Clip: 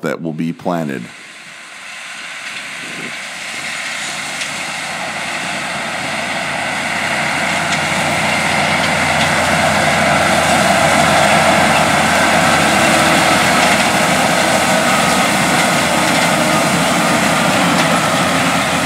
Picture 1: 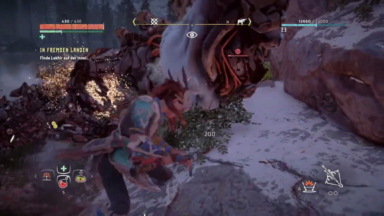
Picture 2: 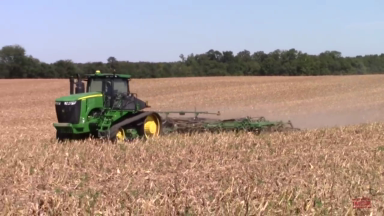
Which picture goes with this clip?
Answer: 2